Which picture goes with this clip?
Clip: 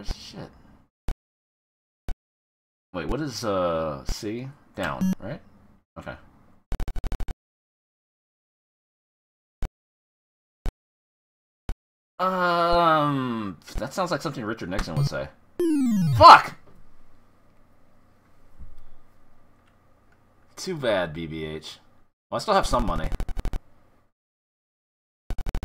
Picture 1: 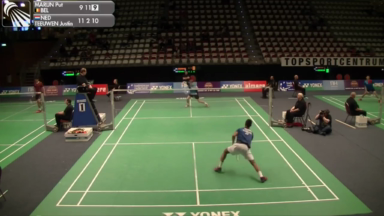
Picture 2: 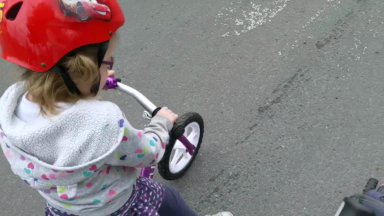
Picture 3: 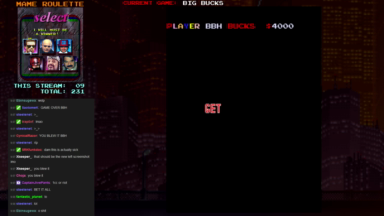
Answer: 3